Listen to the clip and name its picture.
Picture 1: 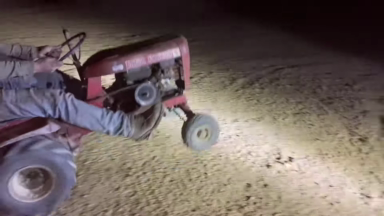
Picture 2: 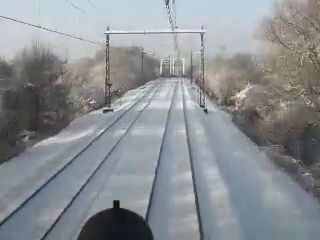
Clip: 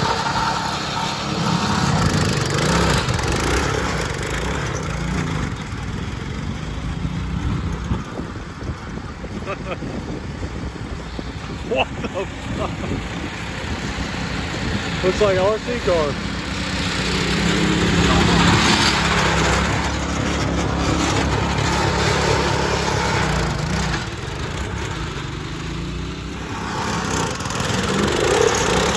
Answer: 1